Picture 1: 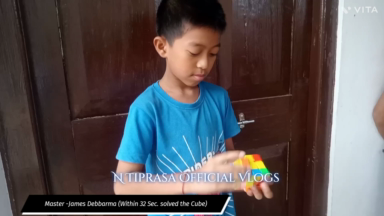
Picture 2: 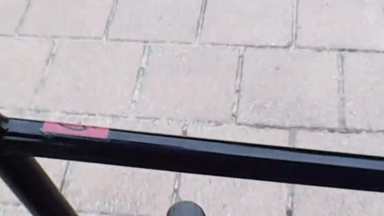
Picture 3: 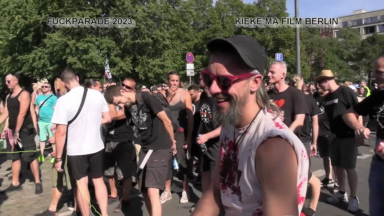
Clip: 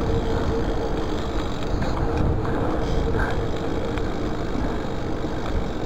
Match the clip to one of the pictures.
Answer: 2